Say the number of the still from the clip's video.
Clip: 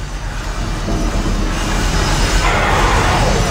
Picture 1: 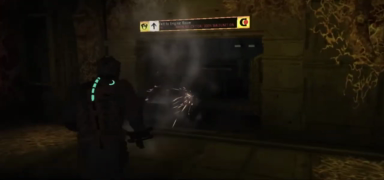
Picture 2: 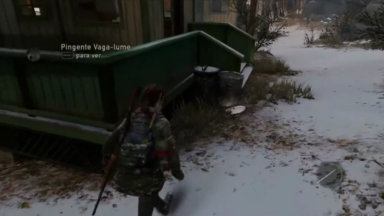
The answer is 1